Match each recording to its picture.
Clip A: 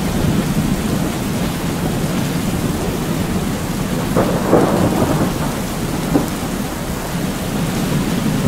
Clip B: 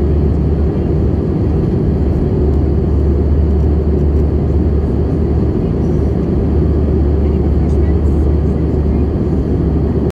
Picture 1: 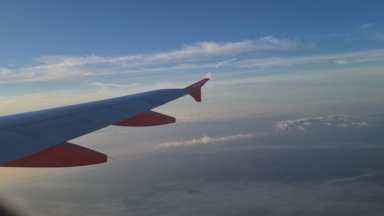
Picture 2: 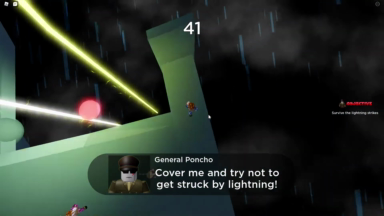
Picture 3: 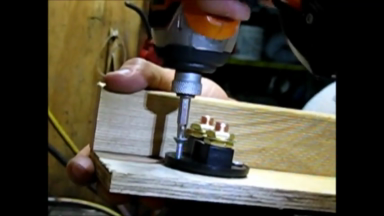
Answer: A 2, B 1